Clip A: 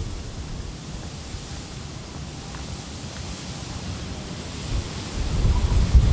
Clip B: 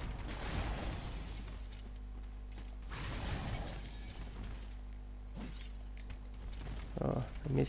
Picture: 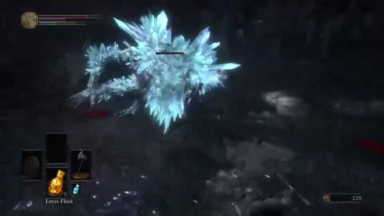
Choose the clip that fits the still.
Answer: B